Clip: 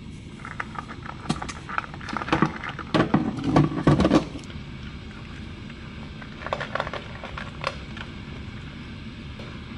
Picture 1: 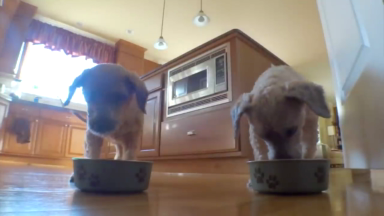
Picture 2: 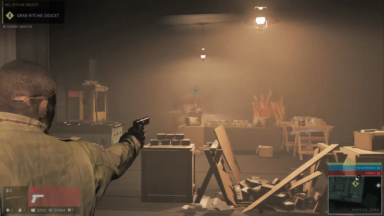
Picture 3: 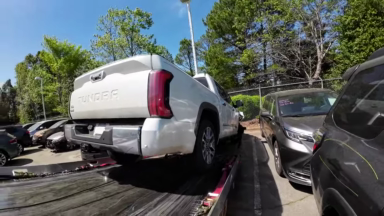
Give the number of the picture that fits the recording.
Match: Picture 1